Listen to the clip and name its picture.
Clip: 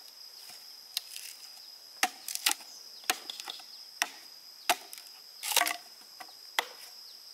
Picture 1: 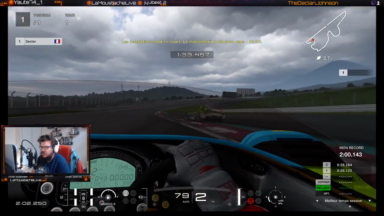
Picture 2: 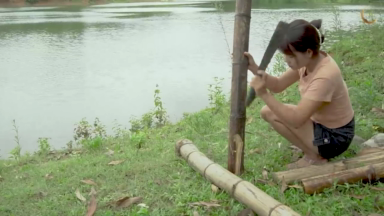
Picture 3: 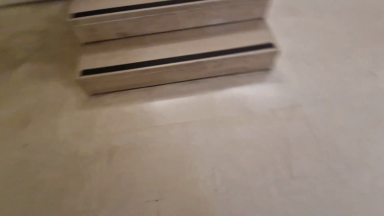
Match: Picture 2